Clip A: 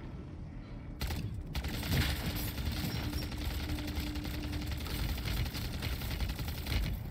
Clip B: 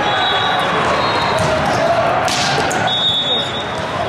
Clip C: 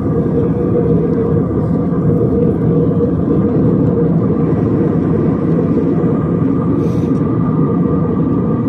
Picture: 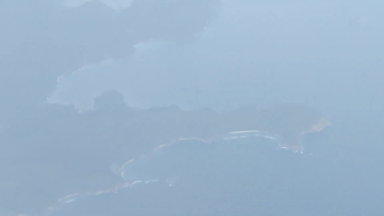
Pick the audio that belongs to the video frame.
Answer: C